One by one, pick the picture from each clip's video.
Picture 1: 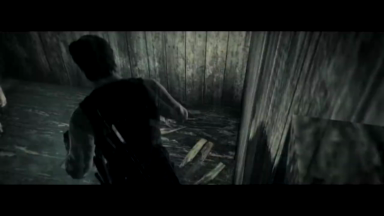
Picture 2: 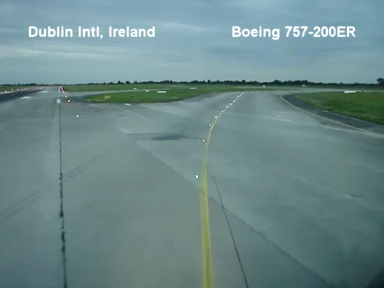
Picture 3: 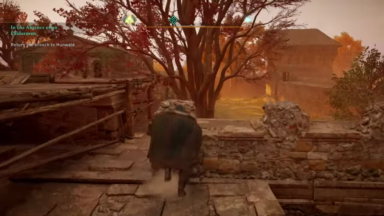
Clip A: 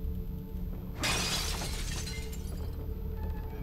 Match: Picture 1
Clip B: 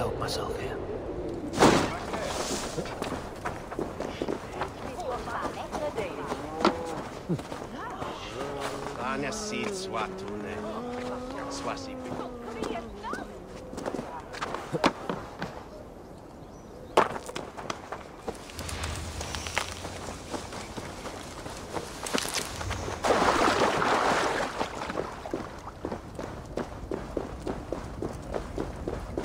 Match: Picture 3